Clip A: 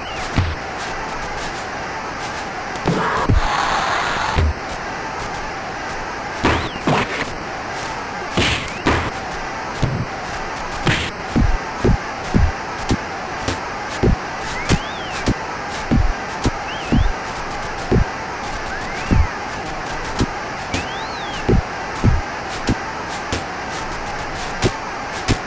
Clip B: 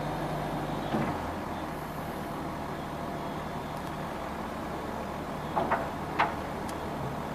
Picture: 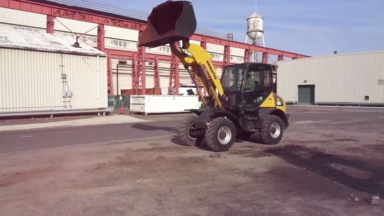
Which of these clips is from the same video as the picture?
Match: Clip B